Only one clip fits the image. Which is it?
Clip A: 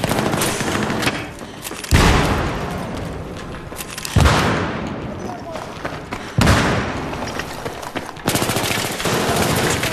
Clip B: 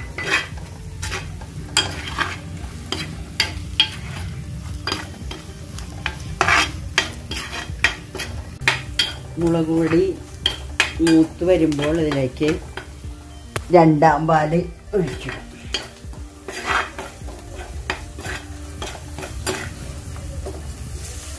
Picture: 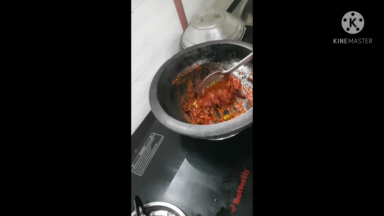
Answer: B